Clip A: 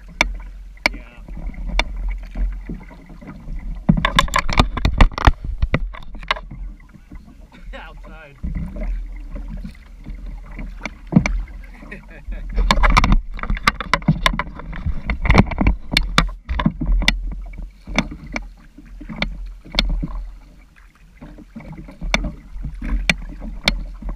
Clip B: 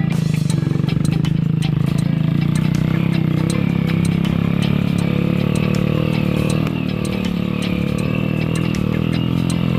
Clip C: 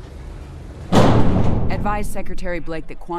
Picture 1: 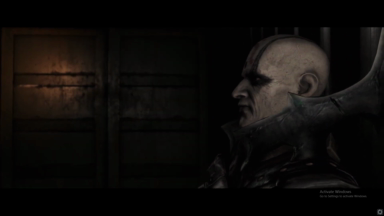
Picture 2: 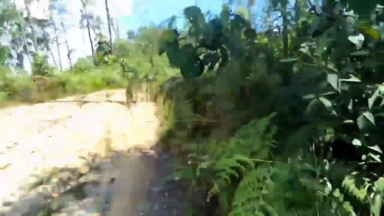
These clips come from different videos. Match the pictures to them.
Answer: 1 C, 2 B